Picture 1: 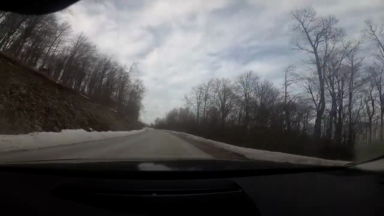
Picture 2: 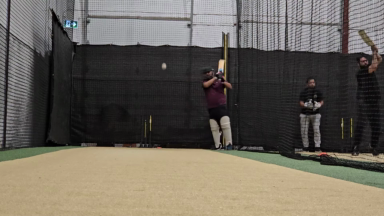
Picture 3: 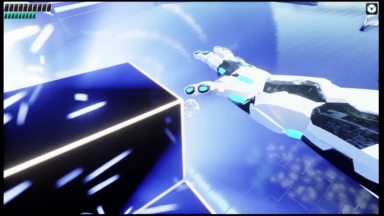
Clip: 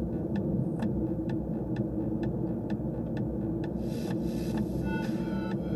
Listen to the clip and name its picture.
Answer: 1